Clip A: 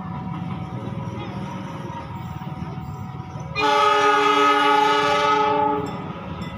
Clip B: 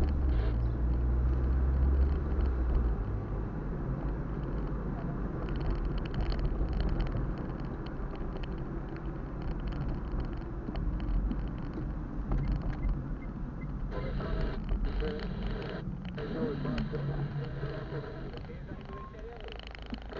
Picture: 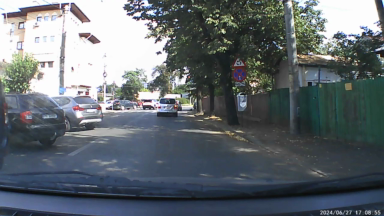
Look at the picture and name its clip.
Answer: B